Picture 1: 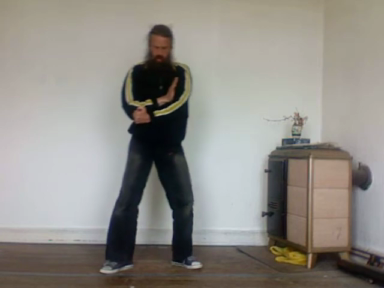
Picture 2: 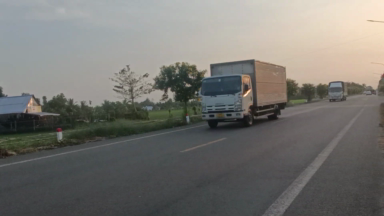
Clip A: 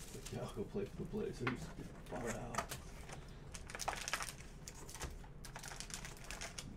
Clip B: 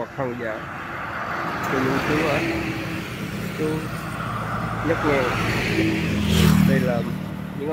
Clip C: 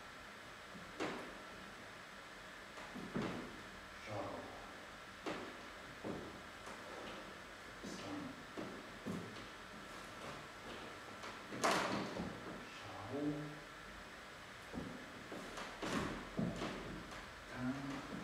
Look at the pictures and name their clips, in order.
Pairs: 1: C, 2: B